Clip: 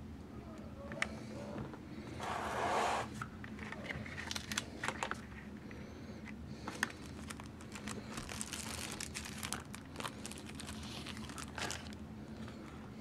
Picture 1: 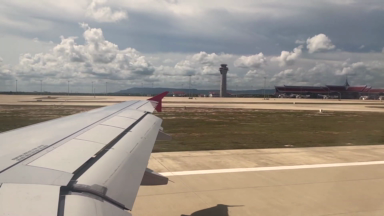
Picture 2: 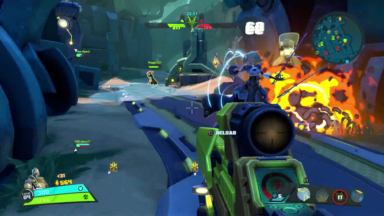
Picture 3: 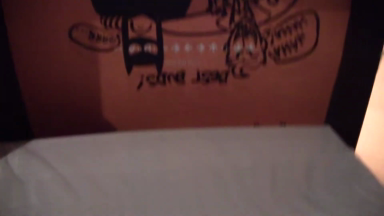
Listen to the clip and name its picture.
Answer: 3